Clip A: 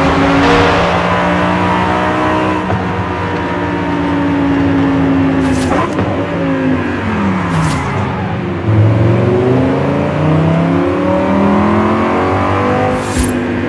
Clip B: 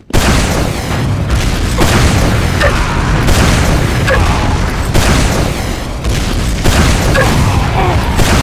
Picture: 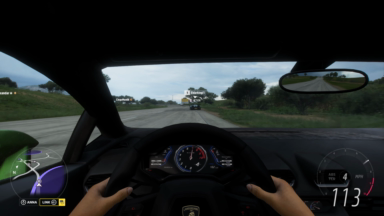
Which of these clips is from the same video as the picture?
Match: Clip A